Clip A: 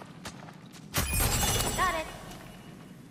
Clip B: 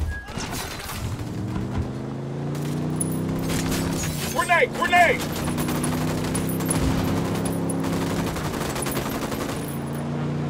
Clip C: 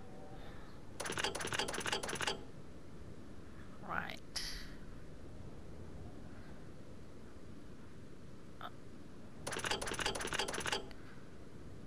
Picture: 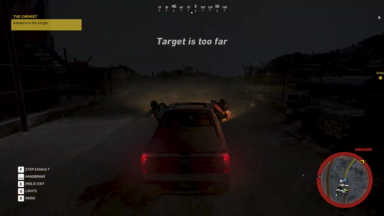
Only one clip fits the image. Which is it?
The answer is B